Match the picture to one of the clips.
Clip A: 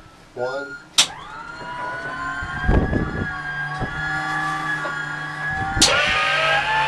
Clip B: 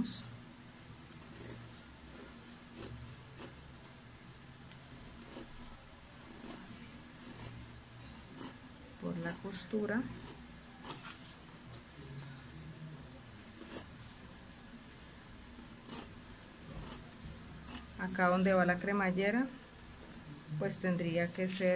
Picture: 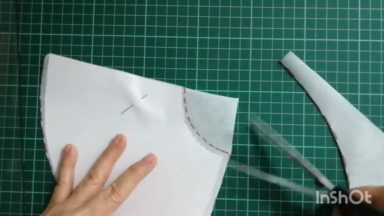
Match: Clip B